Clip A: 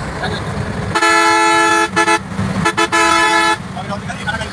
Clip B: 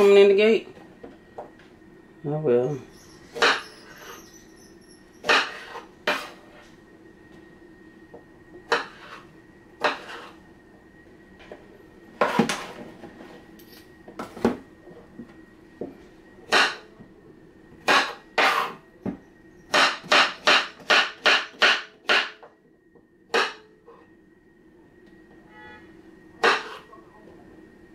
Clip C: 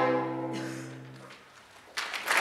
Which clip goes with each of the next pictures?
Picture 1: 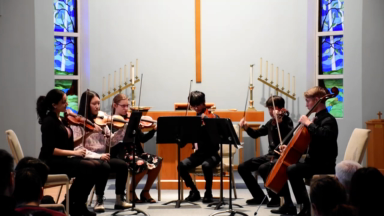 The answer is C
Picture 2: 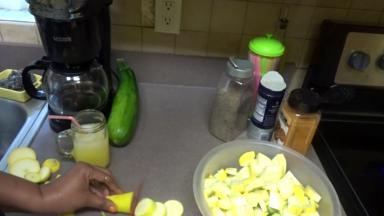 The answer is B